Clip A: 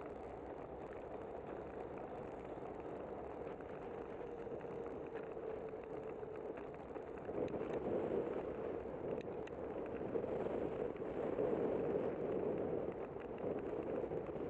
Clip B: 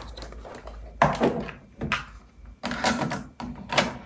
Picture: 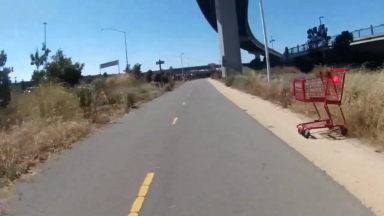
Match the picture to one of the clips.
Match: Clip A